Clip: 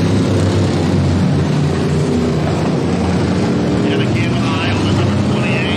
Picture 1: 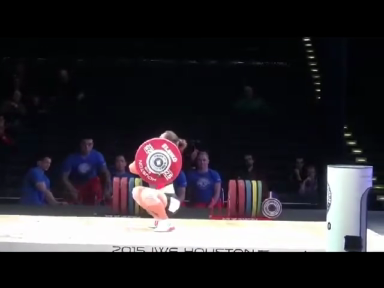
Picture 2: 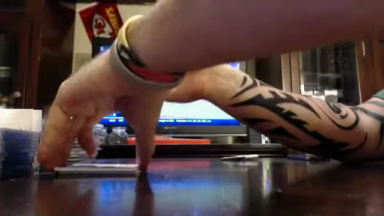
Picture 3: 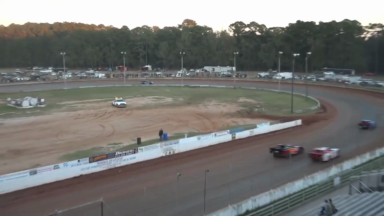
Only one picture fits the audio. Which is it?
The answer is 3